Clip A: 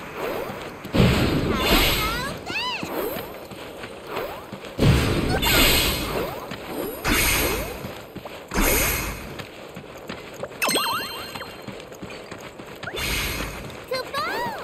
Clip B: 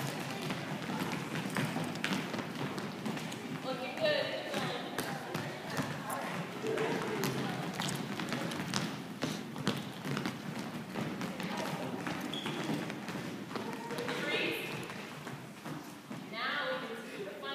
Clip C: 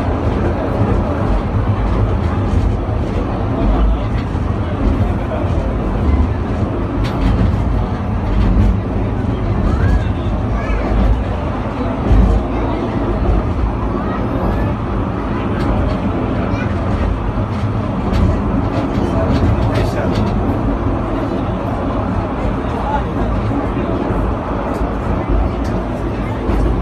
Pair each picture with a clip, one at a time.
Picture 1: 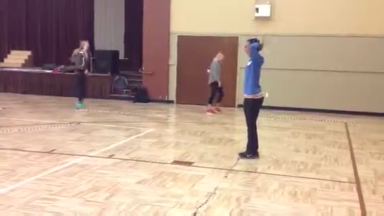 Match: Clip B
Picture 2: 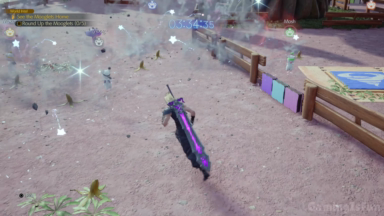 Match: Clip A